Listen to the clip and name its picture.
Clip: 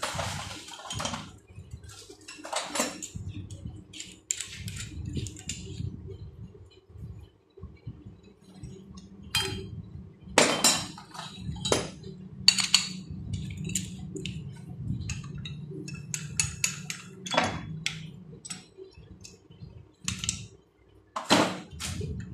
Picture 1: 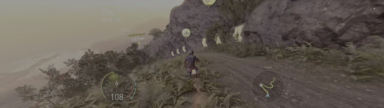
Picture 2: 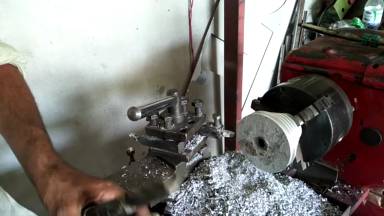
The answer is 2